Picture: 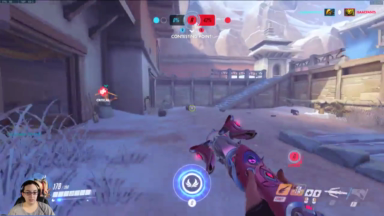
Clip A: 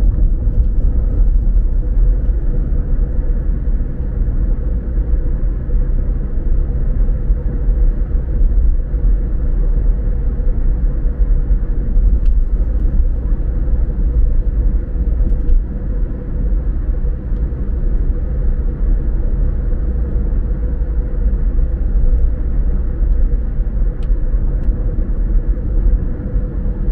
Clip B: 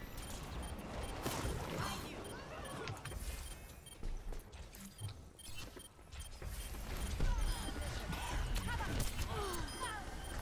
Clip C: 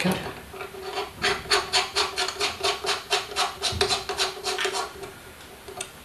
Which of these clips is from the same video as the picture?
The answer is B